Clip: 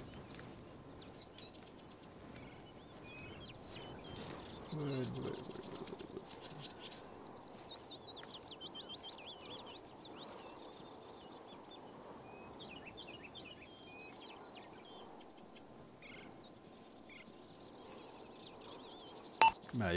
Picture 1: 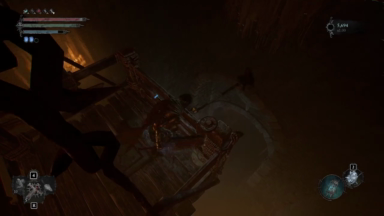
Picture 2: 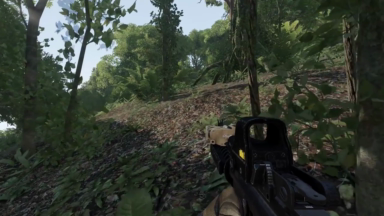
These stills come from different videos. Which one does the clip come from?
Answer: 2